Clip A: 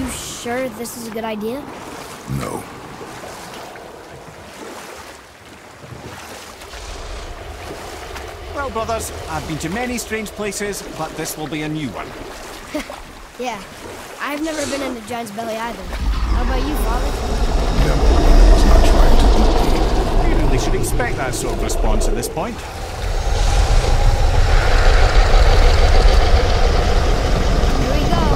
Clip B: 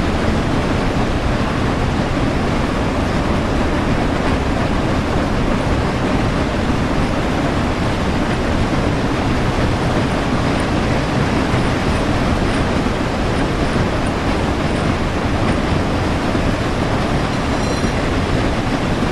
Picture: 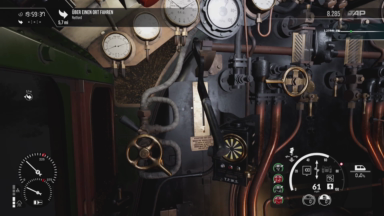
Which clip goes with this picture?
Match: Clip B